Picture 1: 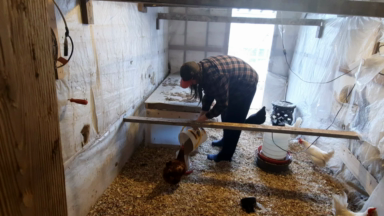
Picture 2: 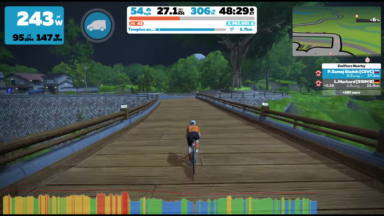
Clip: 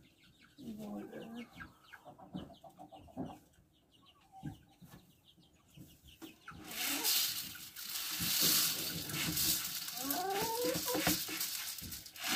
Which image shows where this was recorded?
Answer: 1